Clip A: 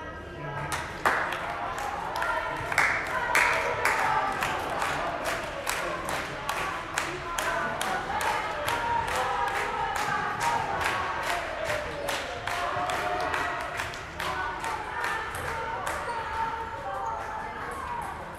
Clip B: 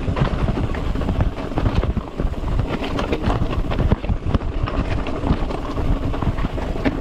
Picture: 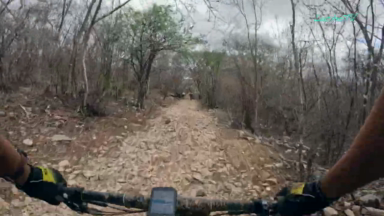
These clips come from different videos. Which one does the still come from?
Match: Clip B